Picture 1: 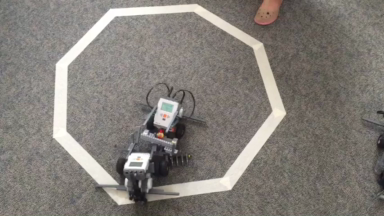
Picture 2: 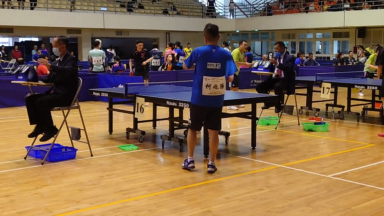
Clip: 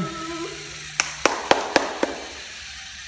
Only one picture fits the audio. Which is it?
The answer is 1